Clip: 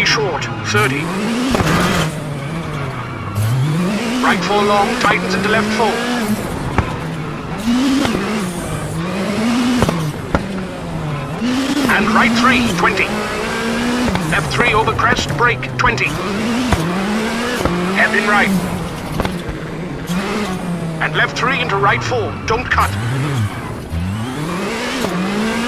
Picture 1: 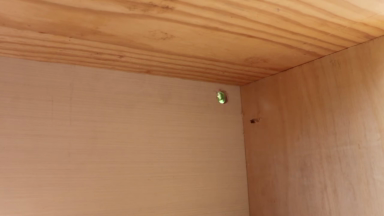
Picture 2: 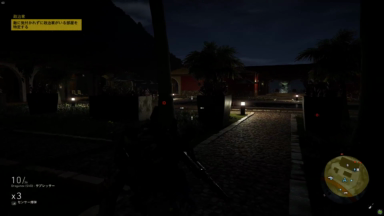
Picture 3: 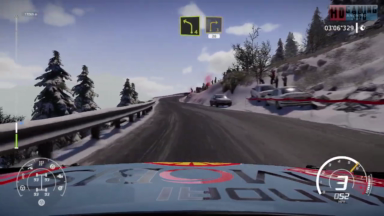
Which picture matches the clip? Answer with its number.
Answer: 3